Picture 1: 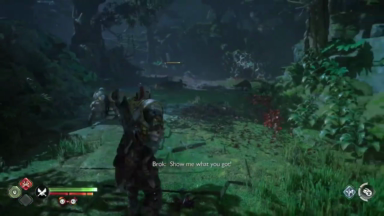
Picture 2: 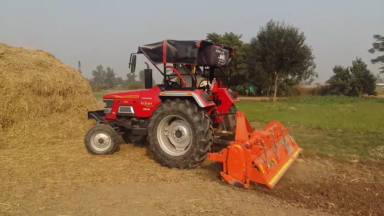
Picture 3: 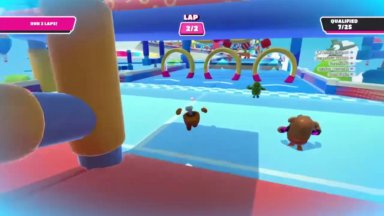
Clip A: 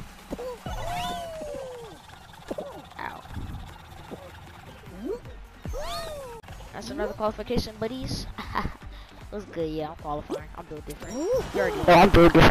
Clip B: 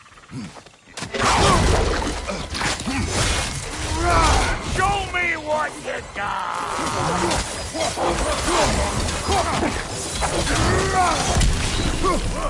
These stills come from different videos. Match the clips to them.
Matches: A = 3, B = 1